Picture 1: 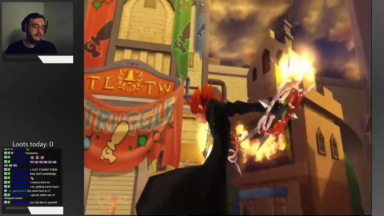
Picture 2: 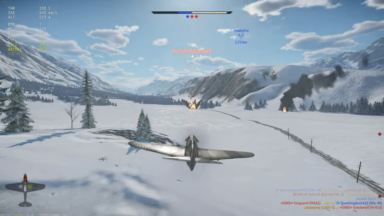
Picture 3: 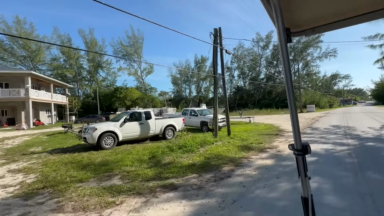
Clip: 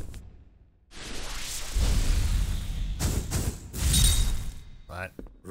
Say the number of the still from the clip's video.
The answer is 1